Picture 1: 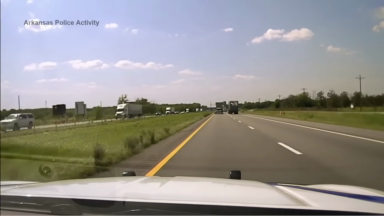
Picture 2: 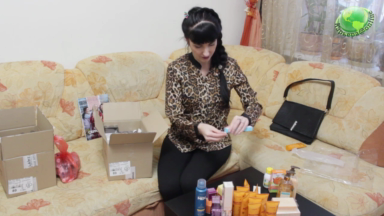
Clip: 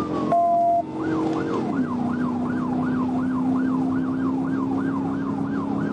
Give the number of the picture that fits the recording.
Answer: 1